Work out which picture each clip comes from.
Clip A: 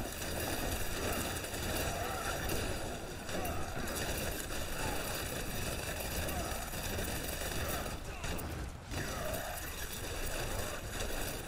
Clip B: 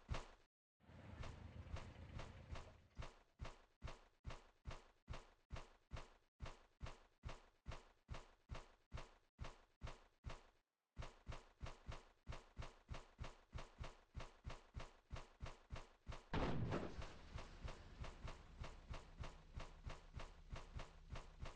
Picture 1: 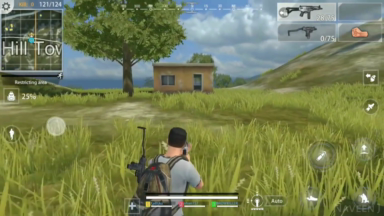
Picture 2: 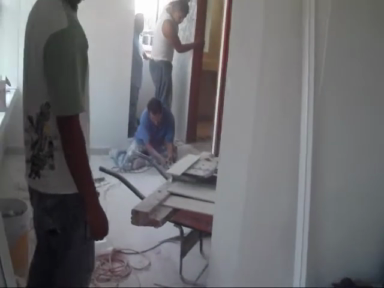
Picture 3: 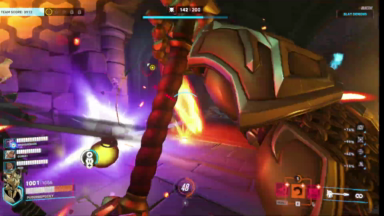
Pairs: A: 3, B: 1